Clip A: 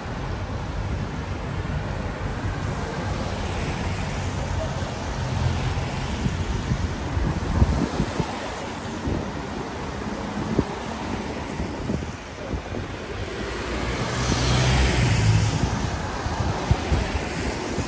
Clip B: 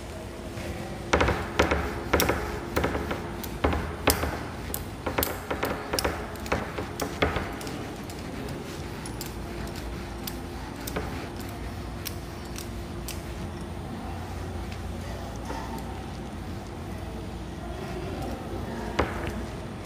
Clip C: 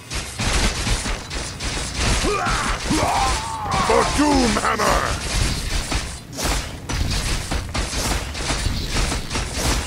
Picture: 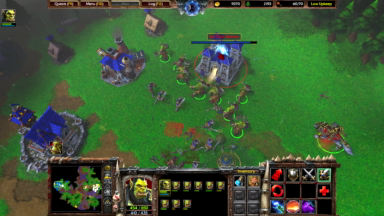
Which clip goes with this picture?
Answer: C